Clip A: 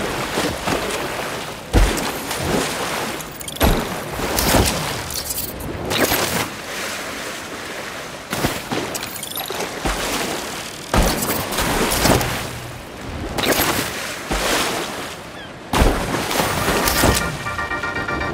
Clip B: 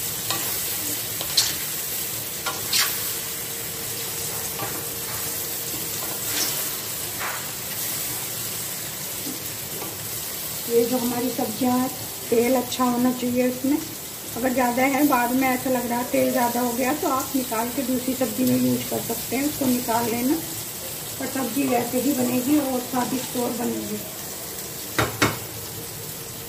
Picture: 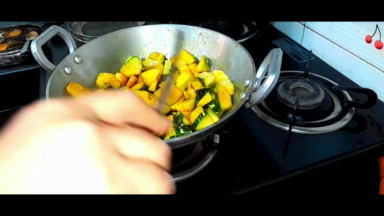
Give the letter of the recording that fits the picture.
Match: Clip B